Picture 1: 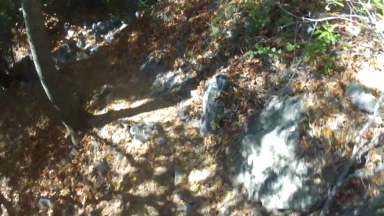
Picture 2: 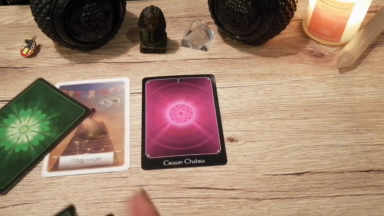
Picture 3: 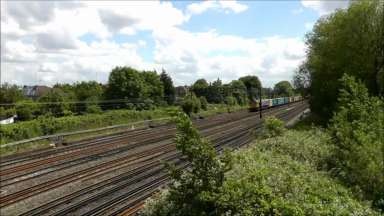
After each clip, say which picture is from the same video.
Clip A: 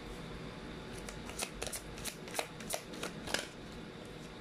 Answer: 2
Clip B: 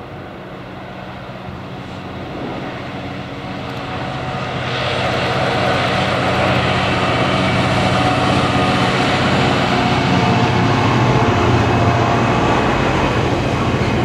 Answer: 3